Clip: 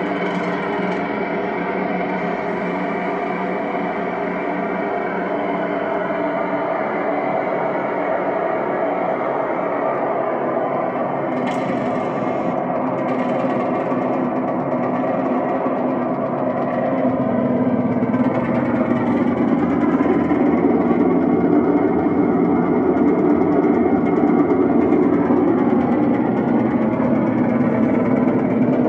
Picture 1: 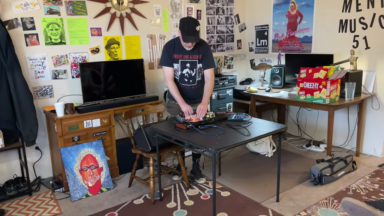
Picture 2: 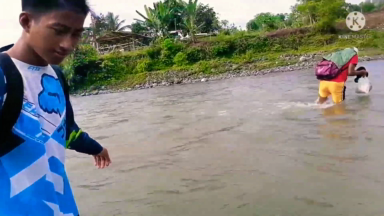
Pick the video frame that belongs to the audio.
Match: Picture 1